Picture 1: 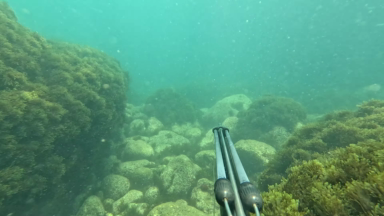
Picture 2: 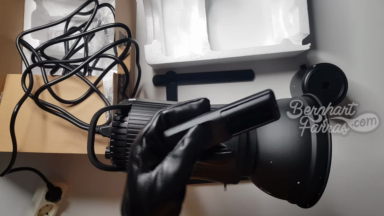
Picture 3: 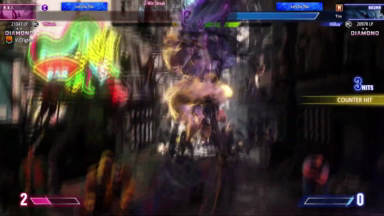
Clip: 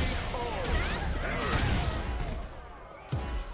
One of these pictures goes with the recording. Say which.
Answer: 3